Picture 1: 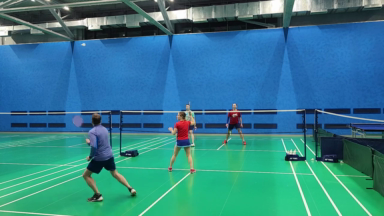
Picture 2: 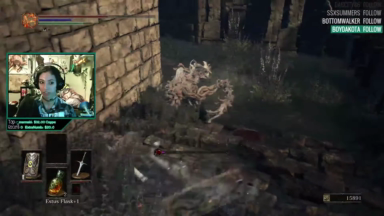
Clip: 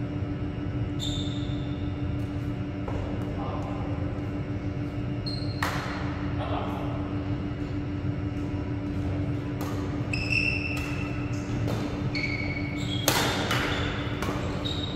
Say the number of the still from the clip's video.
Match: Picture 1